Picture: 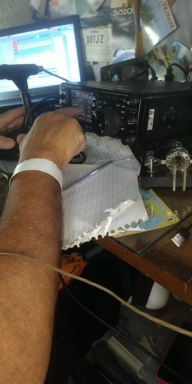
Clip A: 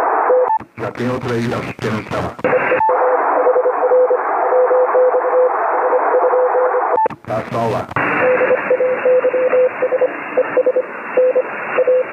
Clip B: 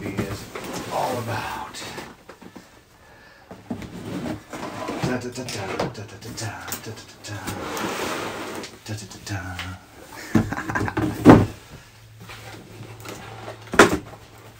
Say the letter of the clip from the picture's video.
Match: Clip A